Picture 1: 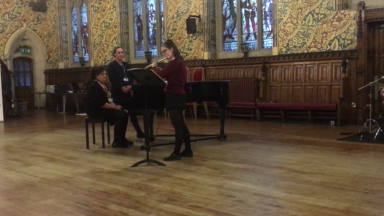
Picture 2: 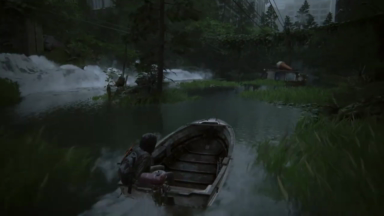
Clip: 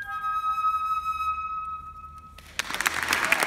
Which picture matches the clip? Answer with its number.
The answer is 1